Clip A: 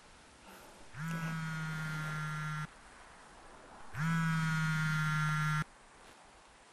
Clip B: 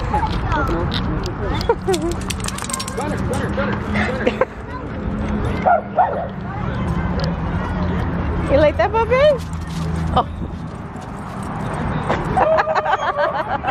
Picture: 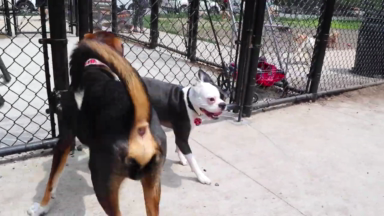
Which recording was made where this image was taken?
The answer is B